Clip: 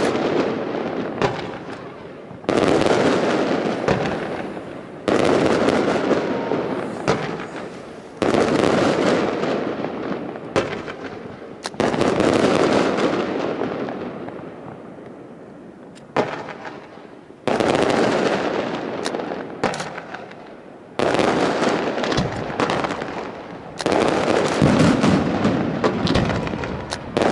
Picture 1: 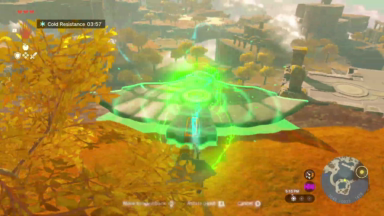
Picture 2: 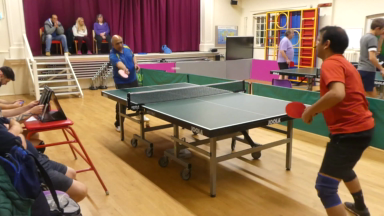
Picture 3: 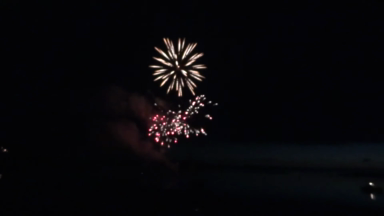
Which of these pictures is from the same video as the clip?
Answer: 3